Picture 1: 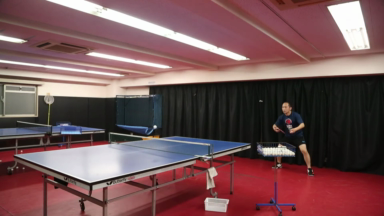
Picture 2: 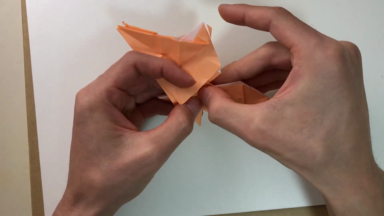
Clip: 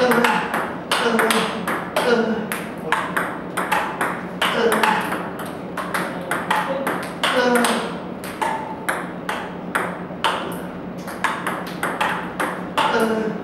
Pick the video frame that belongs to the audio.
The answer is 1